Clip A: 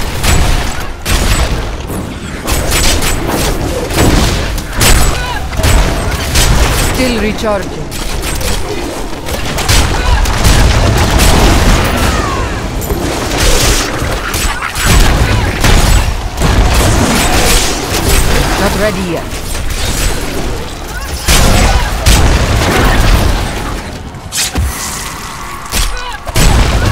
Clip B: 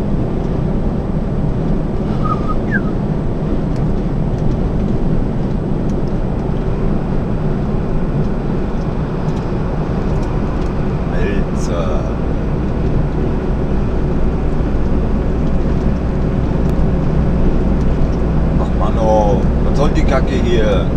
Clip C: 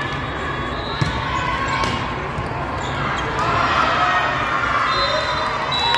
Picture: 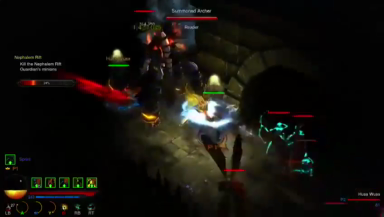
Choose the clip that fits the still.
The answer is A